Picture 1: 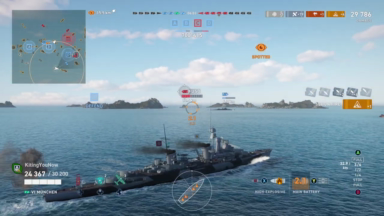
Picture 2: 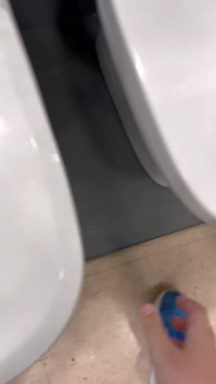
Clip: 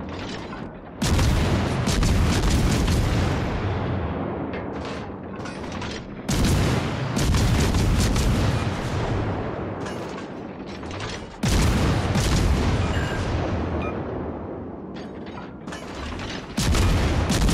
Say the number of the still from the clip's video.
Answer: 1